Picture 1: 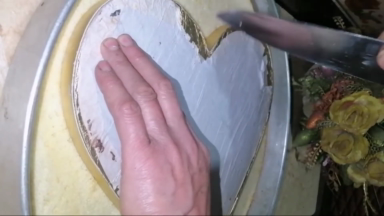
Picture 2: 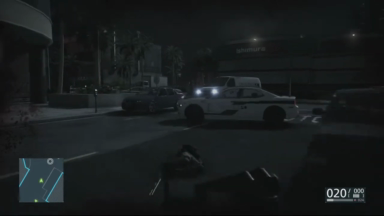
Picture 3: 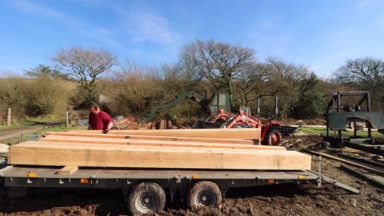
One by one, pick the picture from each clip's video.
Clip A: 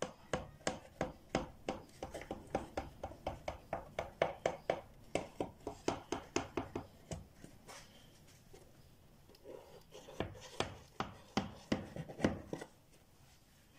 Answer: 1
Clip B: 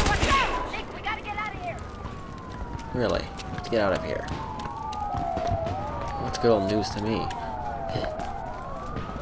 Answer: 2